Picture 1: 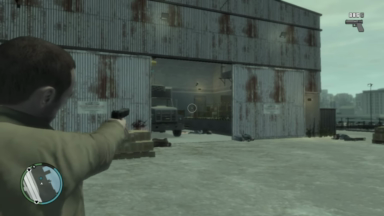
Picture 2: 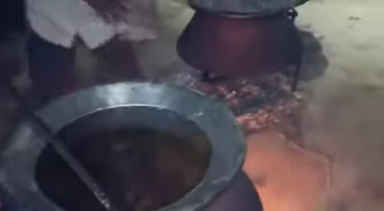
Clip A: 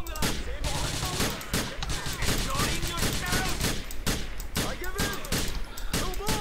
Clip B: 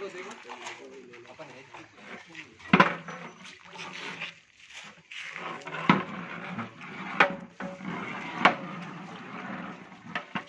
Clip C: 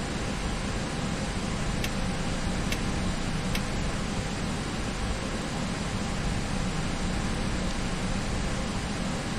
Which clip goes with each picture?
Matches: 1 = A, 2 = B